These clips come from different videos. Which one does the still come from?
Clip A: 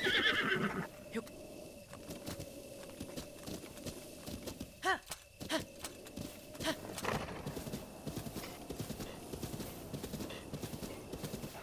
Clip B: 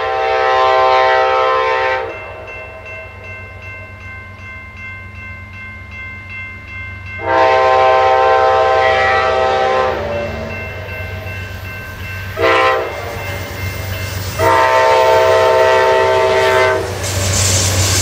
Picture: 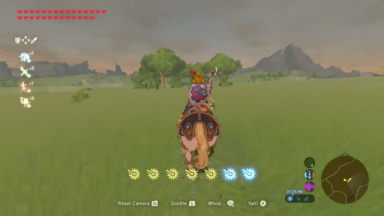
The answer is A